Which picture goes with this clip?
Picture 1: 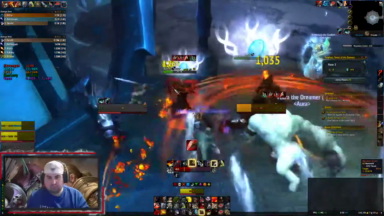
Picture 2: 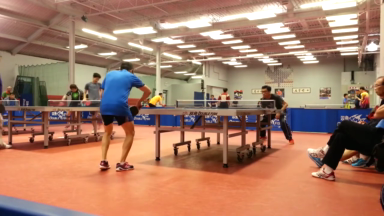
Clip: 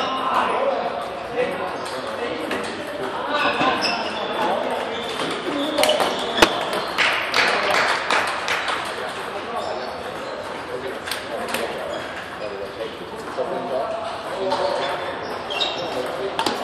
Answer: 2